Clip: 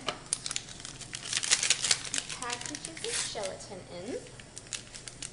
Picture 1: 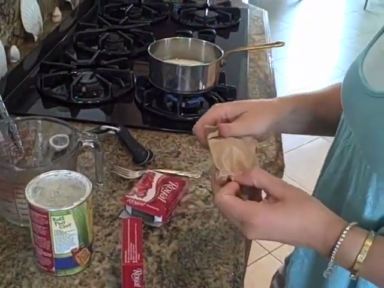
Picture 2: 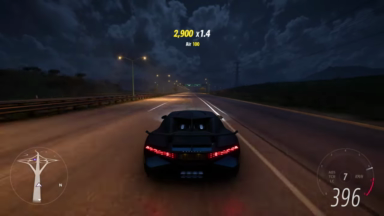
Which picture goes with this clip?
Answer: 1